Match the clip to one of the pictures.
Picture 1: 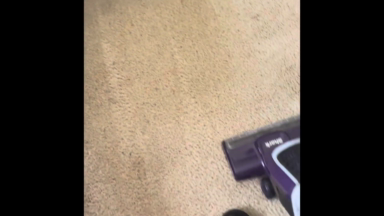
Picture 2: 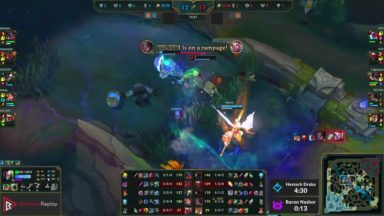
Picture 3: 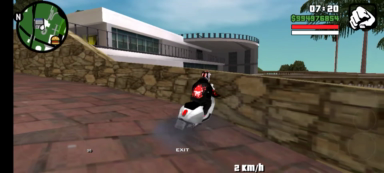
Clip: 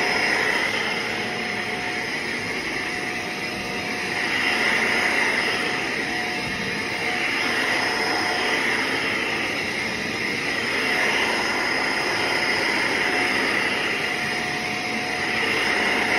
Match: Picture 1